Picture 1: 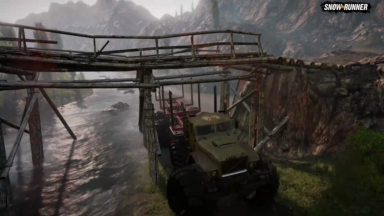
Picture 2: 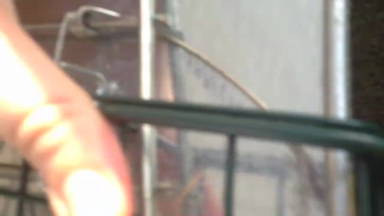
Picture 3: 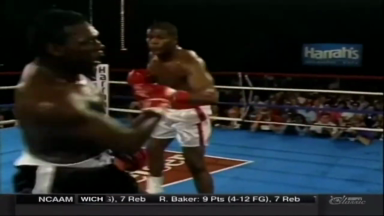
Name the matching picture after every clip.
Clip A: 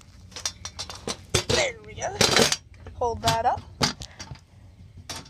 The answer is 2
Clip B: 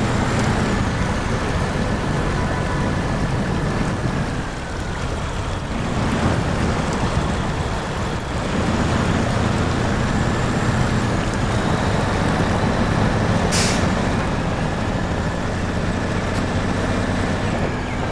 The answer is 1